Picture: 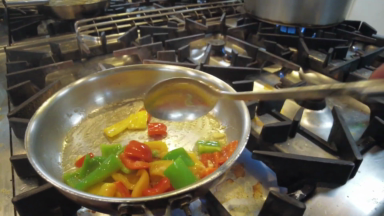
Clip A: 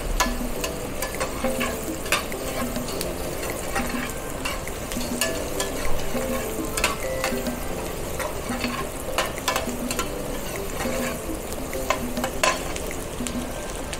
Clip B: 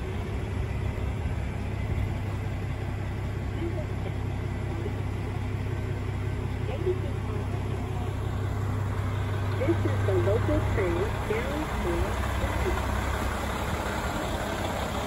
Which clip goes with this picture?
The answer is A